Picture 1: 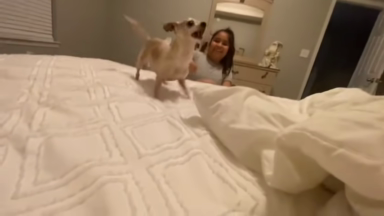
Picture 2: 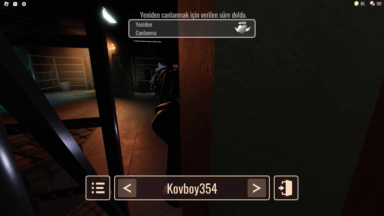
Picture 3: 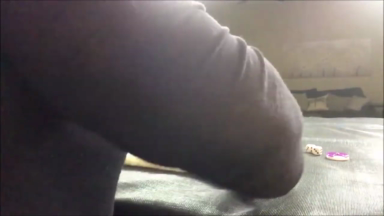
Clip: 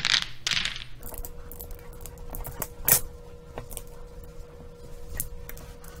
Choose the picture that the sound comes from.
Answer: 3